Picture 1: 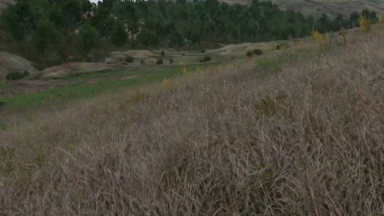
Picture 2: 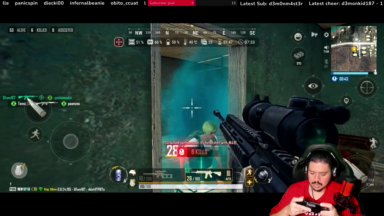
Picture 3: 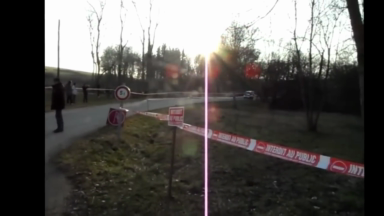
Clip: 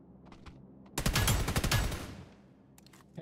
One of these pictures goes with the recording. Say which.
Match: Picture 2